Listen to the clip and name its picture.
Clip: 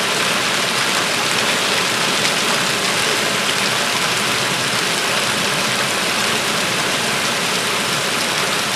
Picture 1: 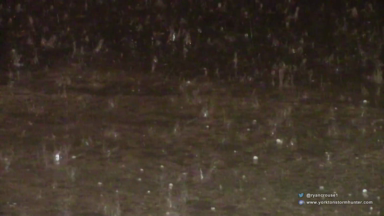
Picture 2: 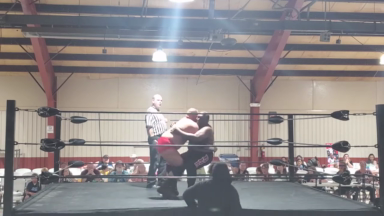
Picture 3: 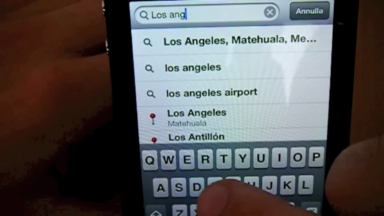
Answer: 1